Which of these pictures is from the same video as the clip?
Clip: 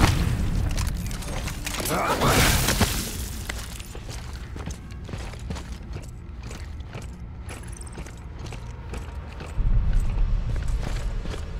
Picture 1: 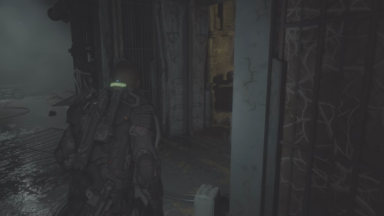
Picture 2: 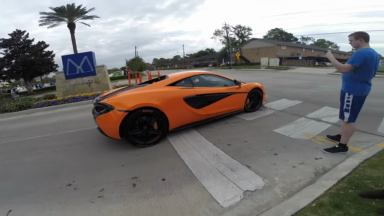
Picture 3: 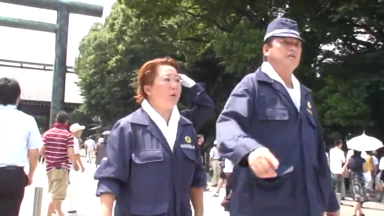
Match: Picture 1